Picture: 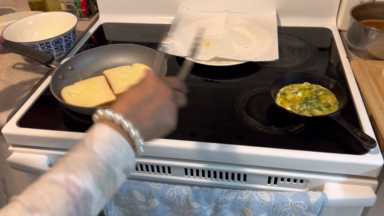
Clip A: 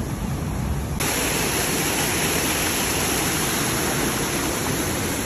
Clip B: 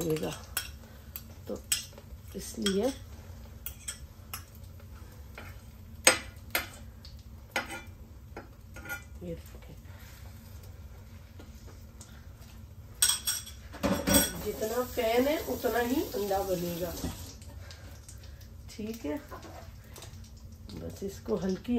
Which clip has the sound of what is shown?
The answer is B